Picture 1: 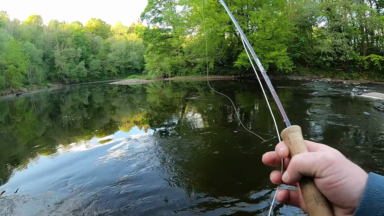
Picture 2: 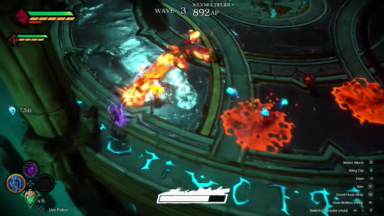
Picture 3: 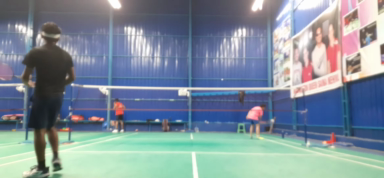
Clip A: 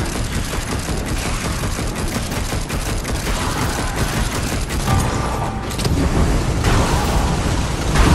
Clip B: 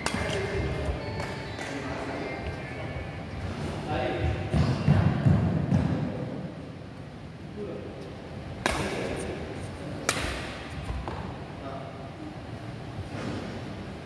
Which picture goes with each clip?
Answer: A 2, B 3